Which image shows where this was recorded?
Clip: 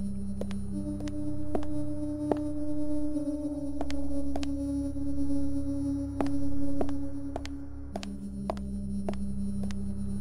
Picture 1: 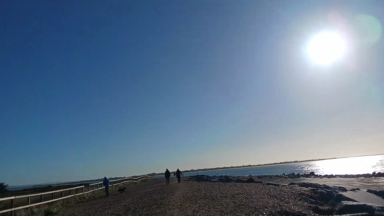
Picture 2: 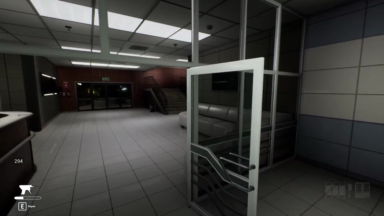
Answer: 2